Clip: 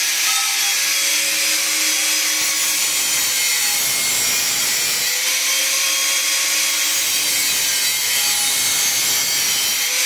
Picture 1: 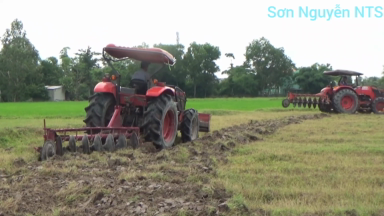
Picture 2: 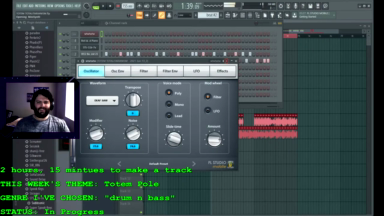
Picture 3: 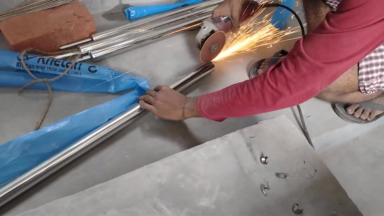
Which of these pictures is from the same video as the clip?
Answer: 3